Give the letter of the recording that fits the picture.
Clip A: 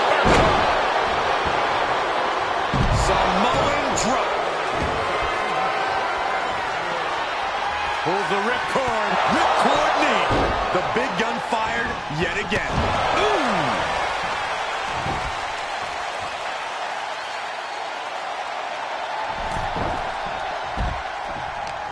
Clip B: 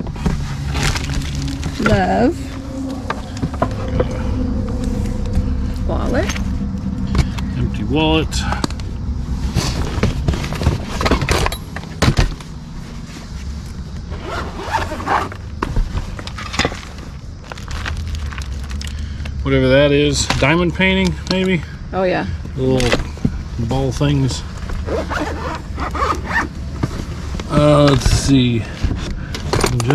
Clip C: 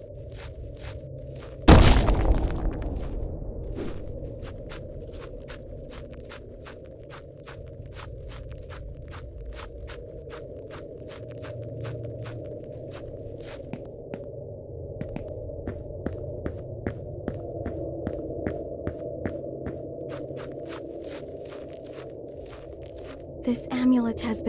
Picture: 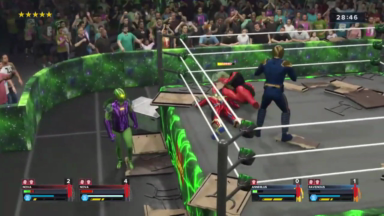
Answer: A